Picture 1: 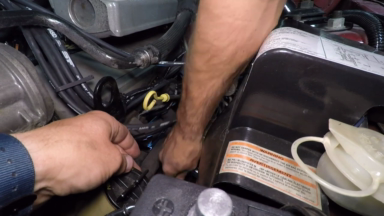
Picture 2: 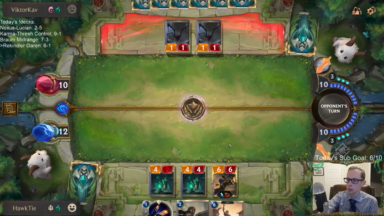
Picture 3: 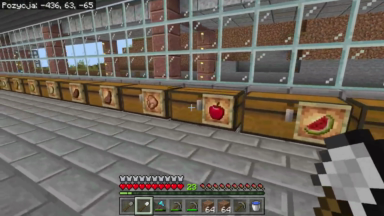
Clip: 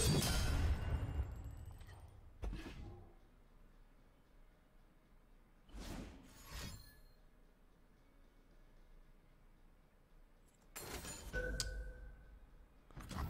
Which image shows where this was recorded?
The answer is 2